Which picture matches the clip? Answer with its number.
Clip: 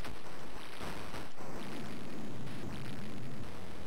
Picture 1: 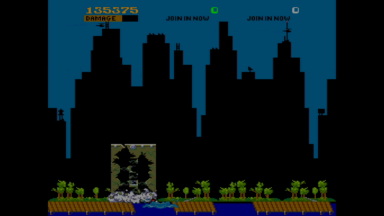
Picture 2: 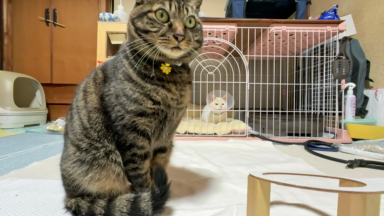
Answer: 1